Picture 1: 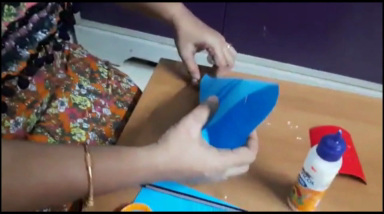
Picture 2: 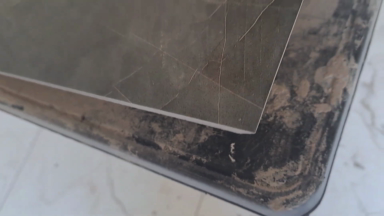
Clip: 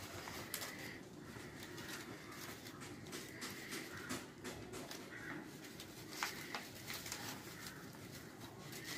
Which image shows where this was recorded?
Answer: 1